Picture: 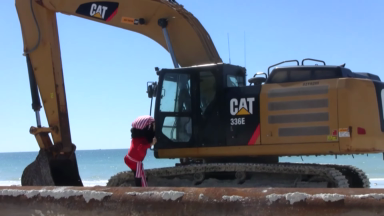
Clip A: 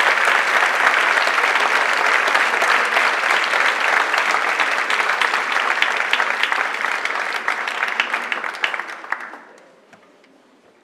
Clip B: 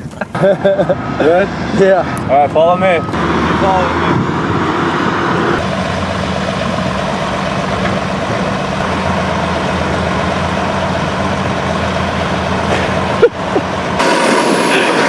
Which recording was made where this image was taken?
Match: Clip B